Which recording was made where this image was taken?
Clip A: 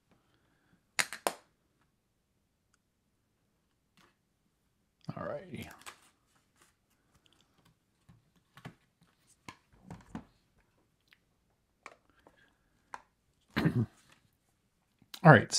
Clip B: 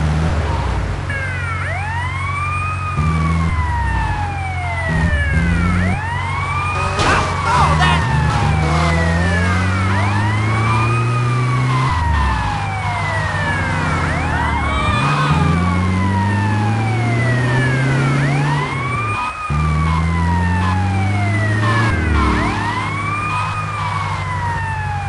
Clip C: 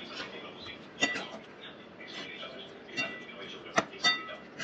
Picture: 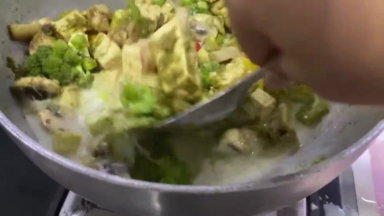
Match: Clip C